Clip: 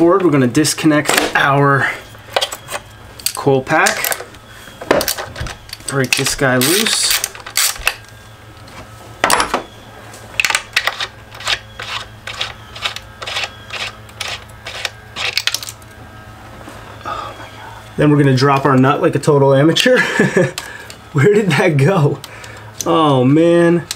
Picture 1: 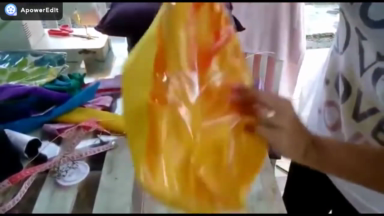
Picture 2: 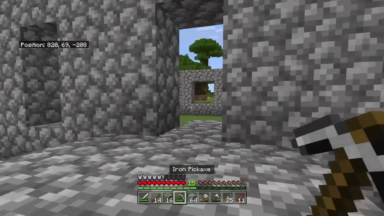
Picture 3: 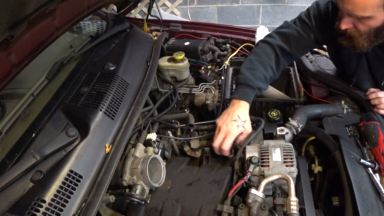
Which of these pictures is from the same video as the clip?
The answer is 3